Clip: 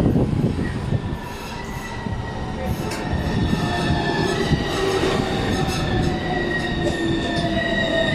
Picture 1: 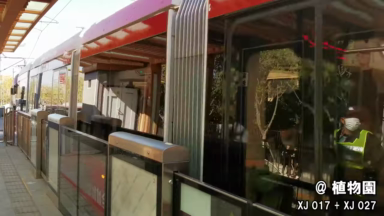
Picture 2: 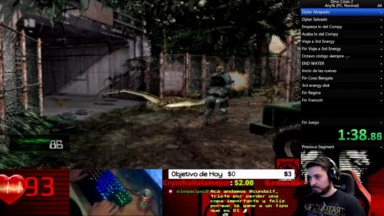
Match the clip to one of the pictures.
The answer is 1